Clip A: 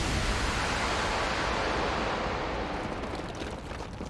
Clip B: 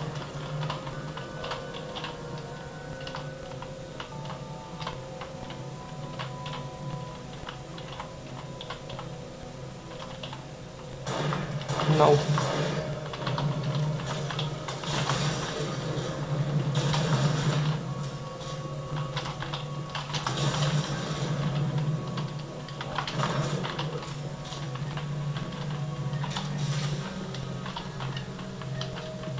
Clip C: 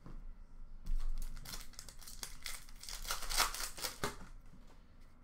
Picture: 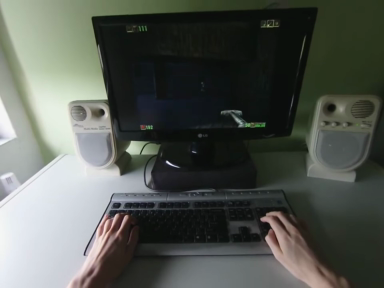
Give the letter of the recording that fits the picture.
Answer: B